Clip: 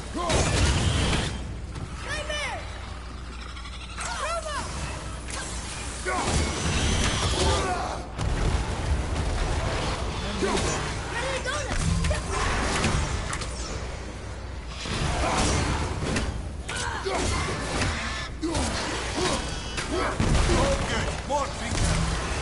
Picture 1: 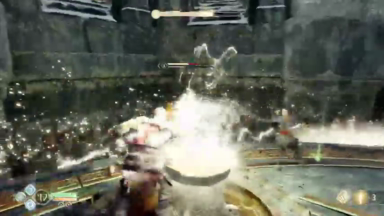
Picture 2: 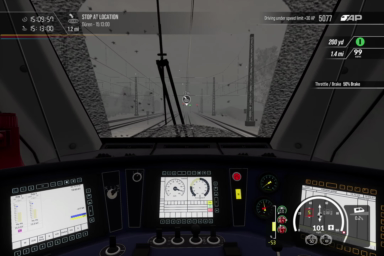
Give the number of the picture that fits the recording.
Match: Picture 1